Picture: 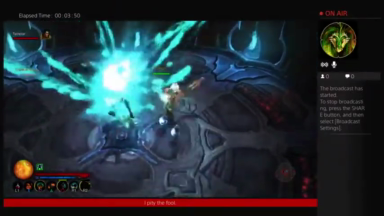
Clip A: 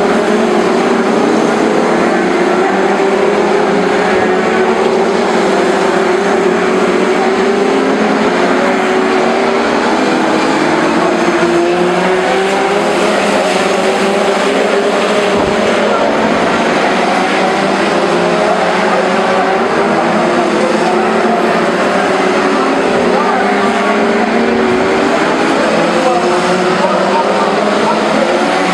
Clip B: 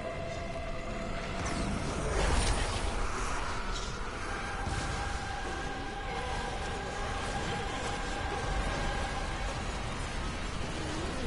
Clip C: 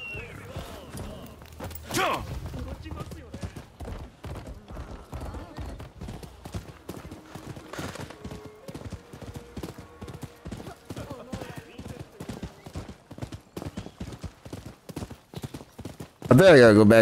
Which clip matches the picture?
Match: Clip B